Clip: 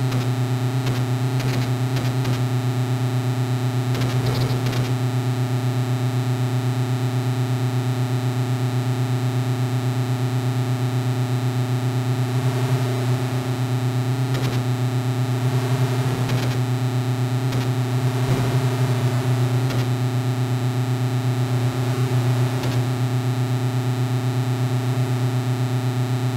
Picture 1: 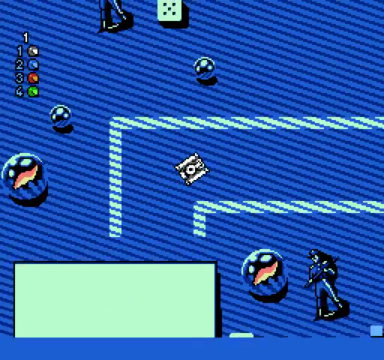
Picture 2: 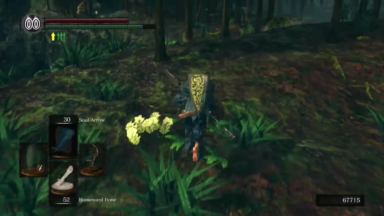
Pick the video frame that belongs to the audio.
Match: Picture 1